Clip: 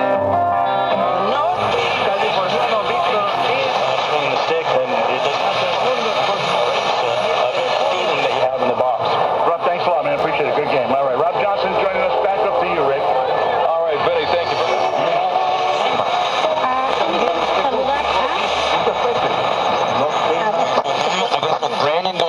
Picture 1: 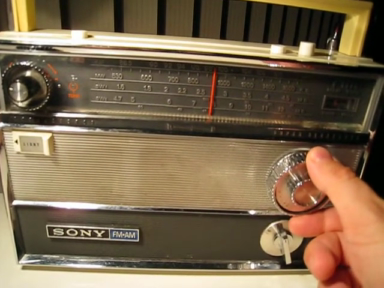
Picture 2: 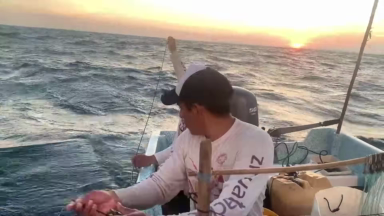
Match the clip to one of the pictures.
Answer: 1